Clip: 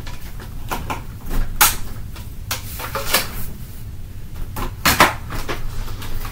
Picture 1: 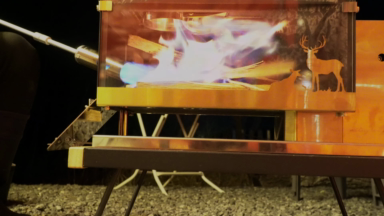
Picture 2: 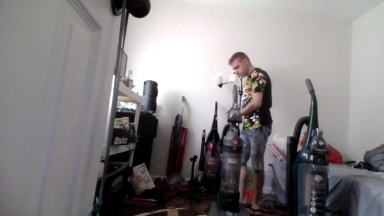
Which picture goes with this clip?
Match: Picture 2